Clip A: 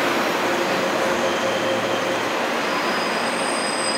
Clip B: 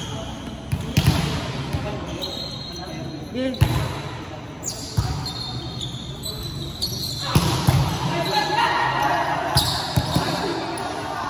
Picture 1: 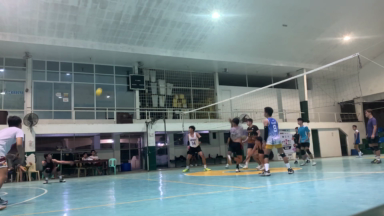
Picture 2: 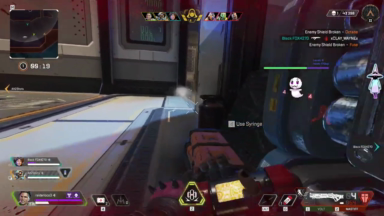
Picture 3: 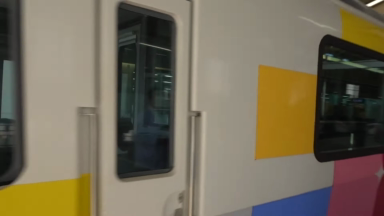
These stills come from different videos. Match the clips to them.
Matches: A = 3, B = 1